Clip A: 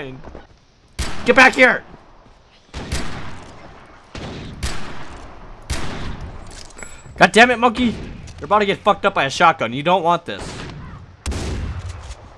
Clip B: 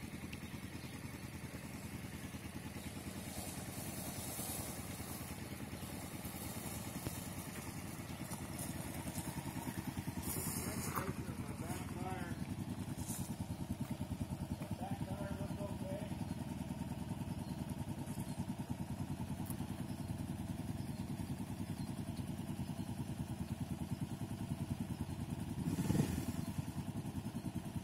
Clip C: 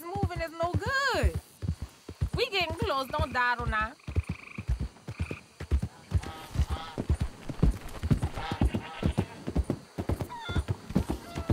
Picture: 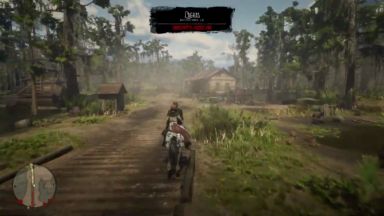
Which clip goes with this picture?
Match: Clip C